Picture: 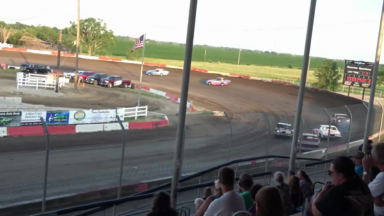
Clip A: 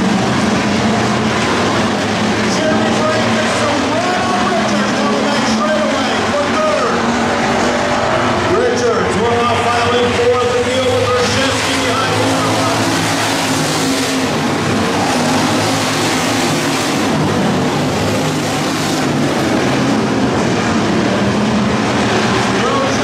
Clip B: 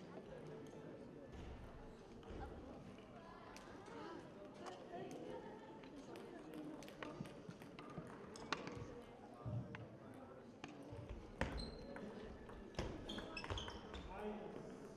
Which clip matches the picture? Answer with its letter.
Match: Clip A